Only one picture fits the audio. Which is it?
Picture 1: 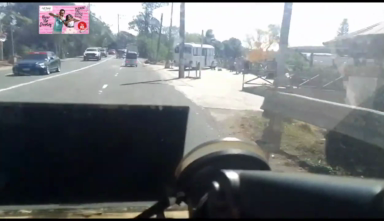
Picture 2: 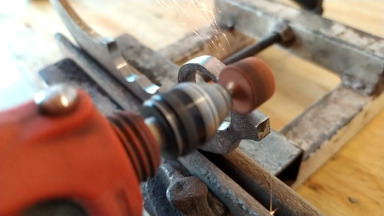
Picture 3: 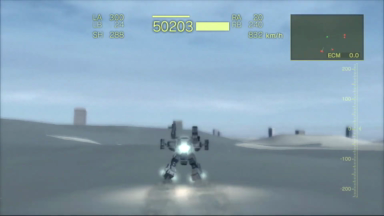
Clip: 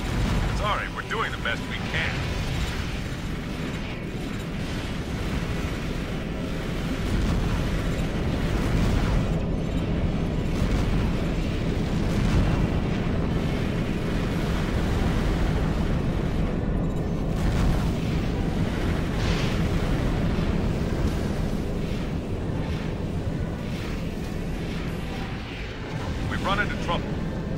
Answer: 3